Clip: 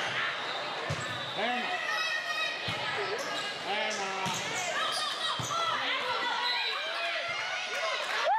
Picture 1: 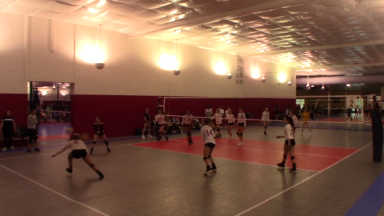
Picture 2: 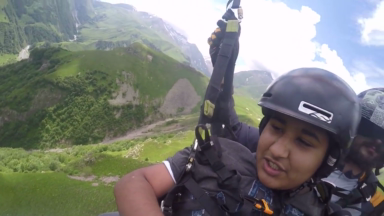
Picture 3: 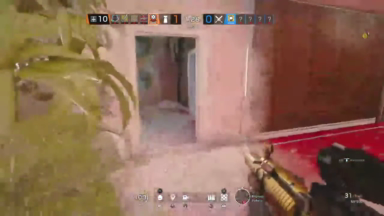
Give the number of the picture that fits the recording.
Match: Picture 1